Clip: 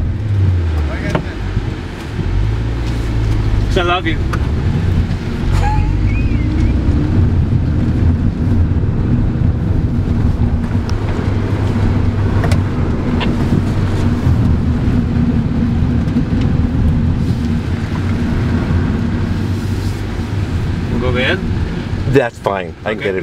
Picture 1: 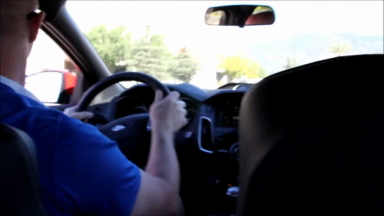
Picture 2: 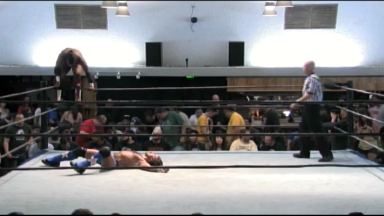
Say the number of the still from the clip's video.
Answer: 1